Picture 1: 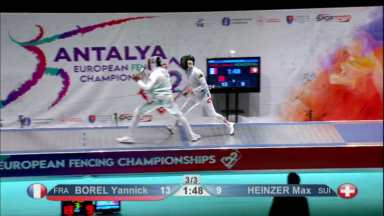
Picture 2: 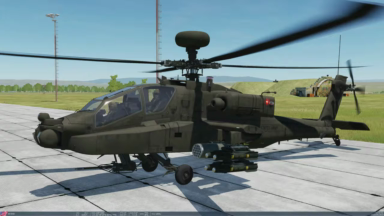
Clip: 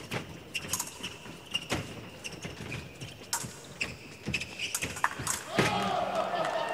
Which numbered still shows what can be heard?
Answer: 1